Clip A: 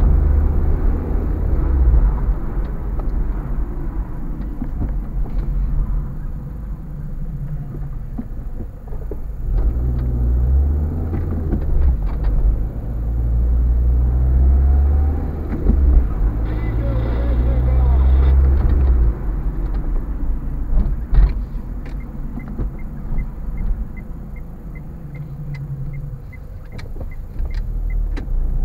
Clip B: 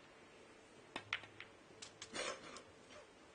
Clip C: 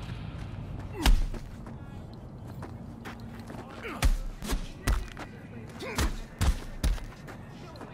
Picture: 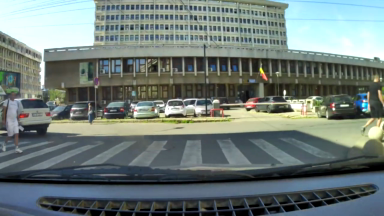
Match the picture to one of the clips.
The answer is A